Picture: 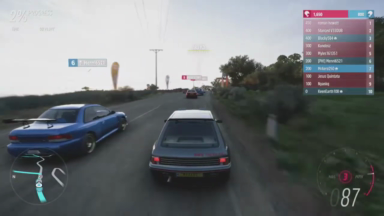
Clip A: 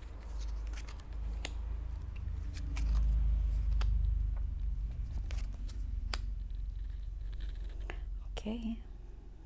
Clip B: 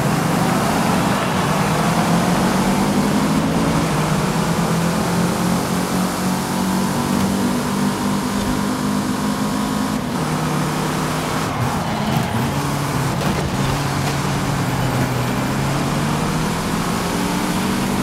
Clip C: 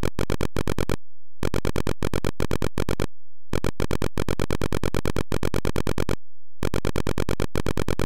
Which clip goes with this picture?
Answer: B